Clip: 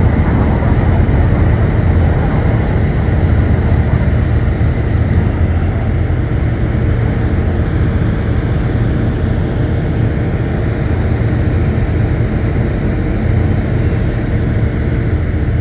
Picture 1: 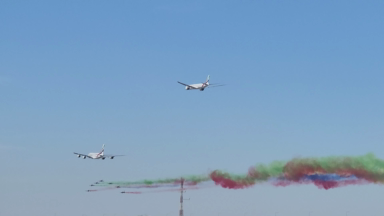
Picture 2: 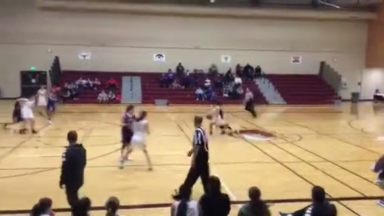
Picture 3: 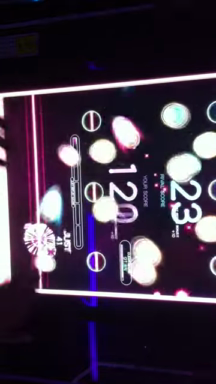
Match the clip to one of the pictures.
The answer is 1